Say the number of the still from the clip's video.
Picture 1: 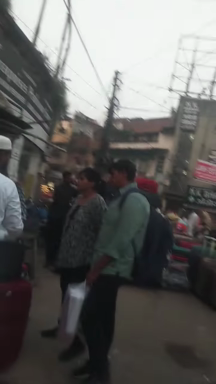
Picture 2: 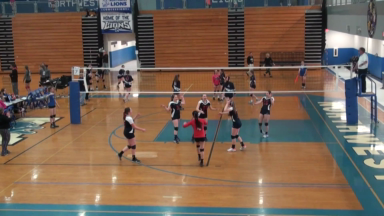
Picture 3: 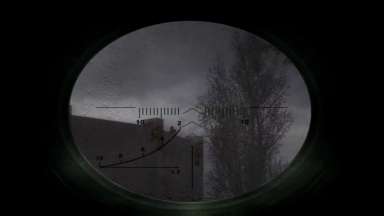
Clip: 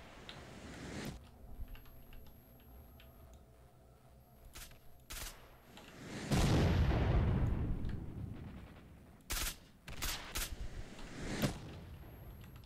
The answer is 3